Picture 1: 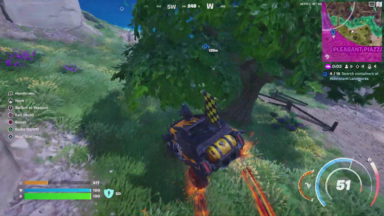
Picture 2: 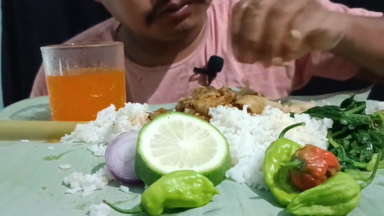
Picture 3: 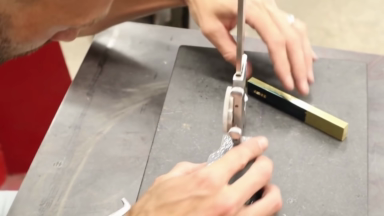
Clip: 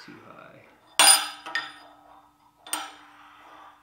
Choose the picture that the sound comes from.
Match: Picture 3